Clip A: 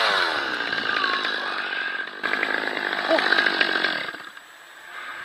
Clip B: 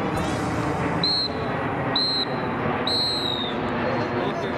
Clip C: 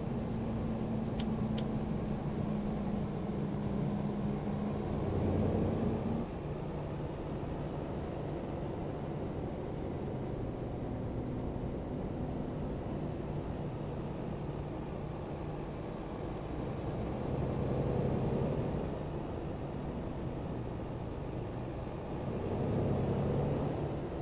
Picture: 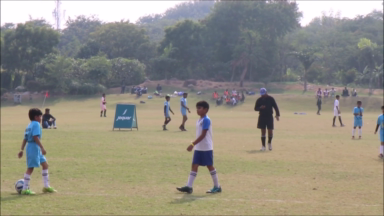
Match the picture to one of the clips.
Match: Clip B